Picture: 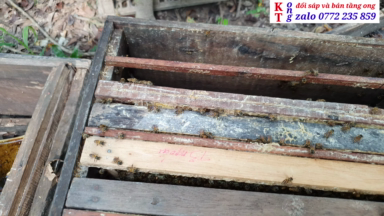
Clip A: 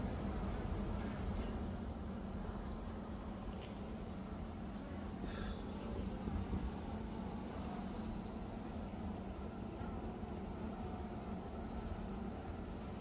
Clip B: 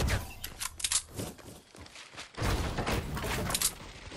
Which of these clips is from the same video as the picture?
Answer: A